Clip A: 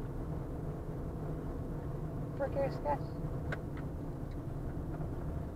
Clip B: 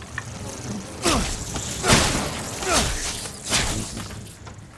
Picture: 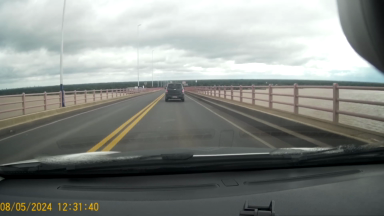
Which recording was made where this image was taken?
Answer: A